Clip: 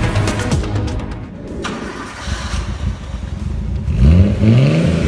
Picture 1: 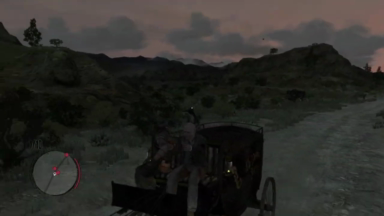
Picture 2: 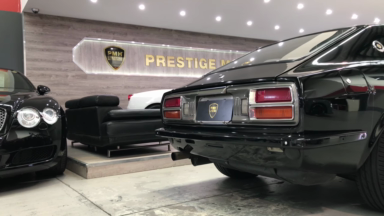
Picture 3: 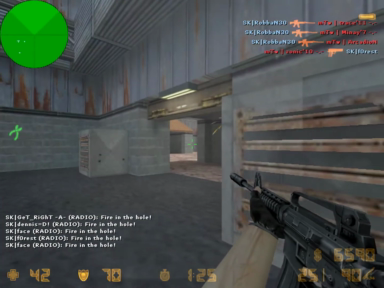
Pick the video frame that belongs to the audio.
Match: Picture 2